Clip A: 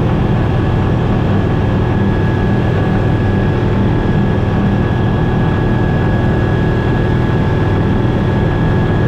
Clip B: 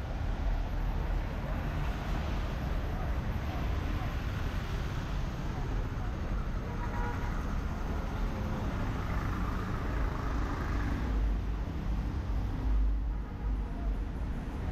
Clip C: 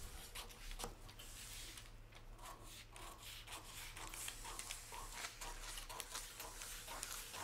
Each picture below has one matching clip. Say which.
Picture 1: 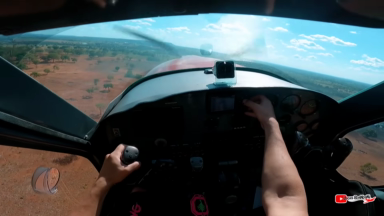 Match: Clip A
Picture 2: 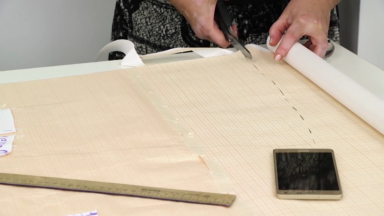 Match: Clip C